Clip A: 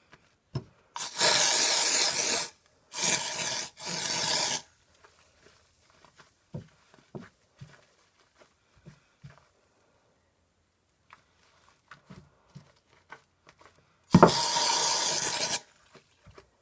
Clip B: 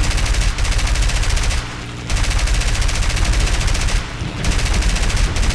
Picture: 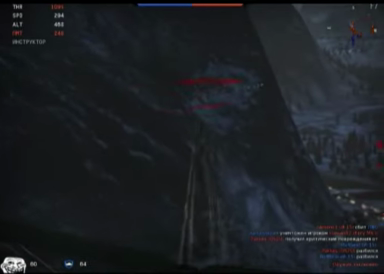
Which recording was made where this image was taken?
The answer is B